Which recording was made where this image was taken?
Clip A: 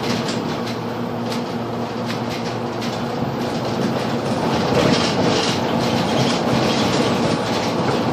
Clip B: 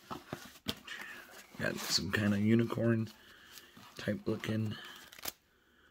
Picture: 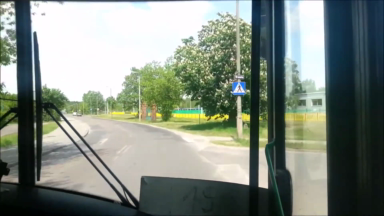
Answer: A